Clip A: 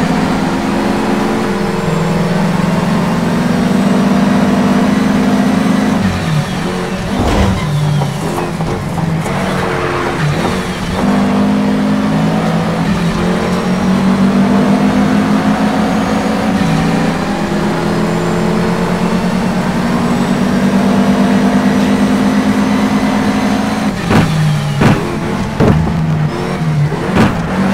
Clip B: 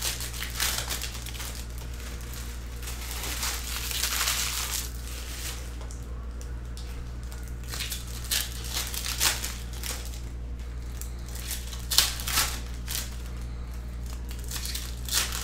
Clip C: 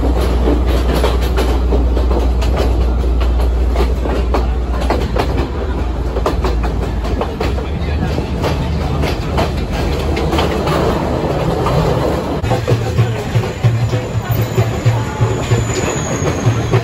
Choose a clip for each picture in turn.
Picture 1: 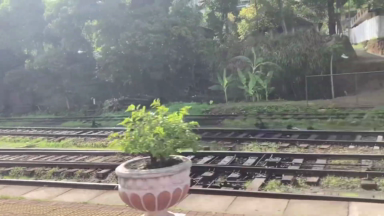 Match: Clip C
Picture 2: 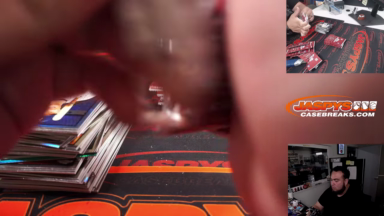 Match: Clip B